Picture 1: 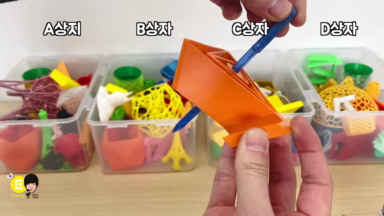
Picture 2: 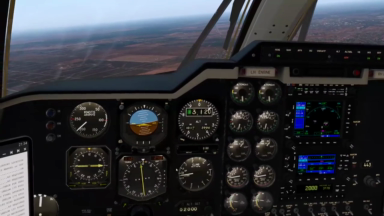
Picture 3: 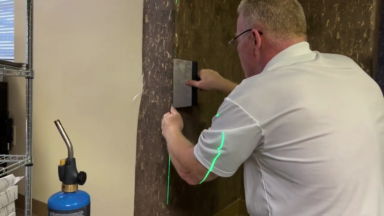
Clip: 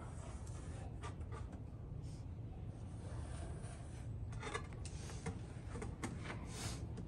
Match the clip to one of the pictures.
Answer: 3